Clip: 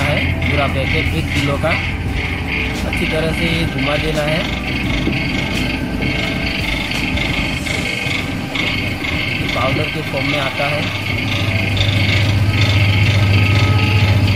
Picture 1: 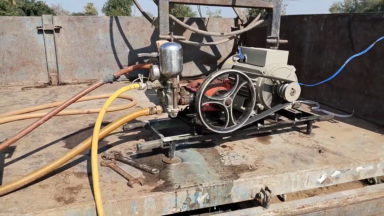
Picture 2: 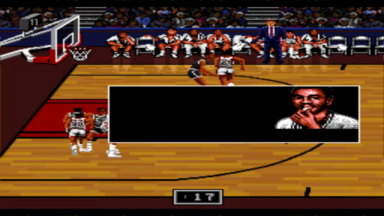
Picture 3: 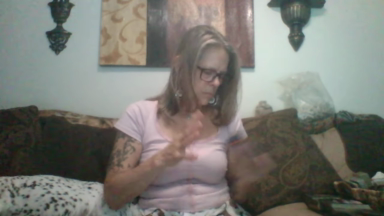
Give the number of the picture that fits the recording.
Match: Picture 1